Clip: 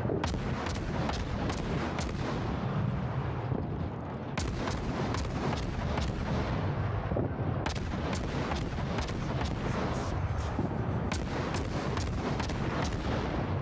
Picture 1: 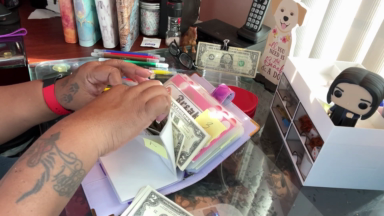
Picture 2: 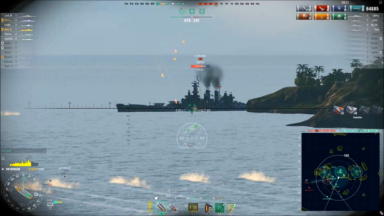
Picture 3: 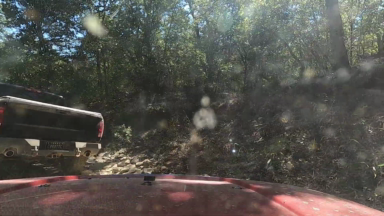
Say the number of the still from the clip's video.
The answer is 2